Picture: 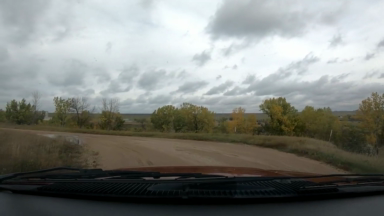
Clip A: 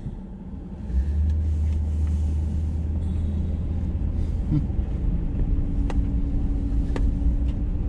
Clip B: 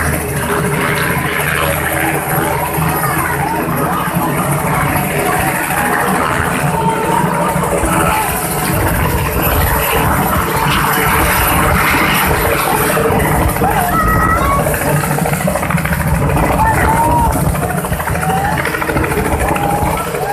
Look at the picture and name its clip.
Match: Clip A